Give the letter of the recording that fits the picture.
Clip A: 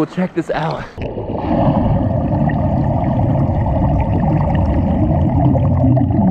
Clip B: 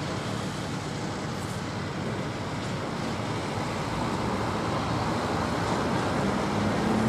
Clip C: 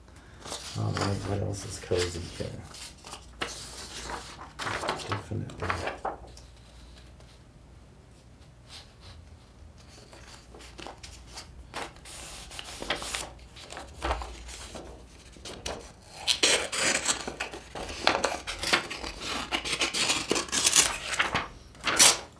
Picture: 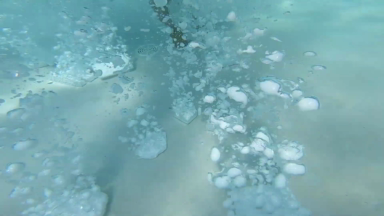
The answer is A